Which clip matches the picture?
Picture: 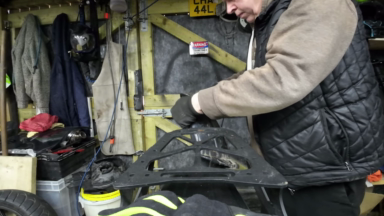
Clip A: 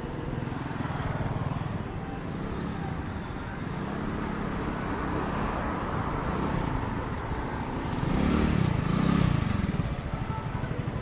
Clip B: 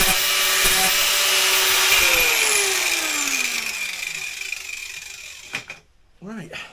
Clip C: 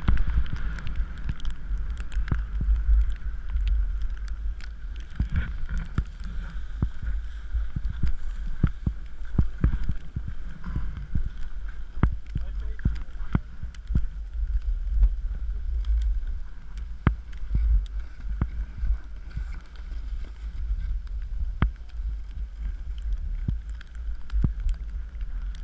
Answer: B